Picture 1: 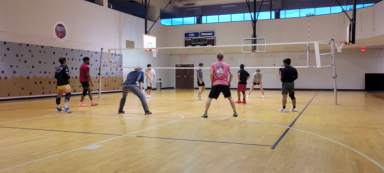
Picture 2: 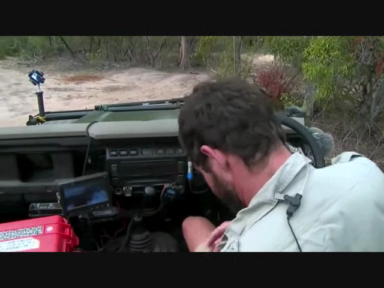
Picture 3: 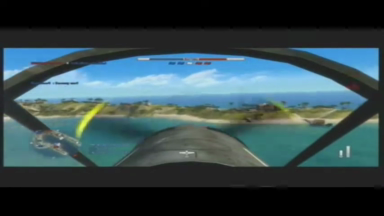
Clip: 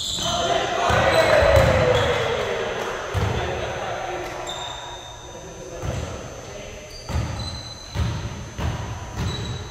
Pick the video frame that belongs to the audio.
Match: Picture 1